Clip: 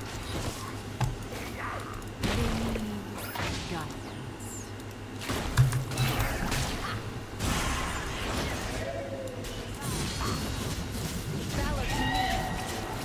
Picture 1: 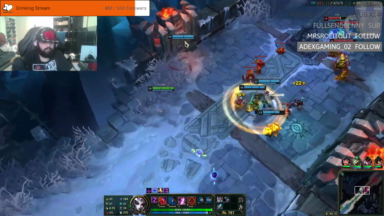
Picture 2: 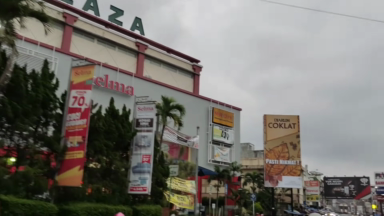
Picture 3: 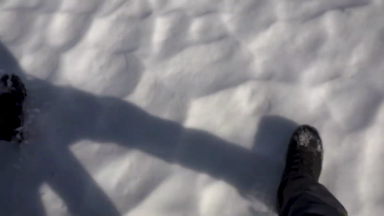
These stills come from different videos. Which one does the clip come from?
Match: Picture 1